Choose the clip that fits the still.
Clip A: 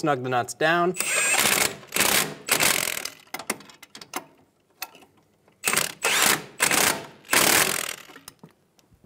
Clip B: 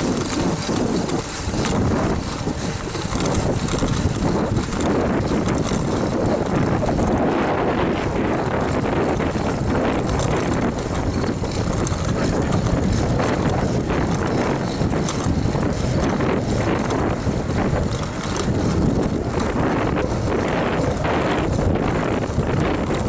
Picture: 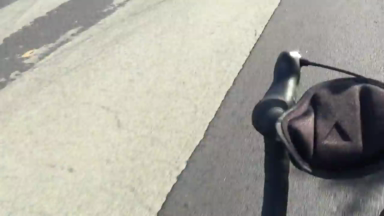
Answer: B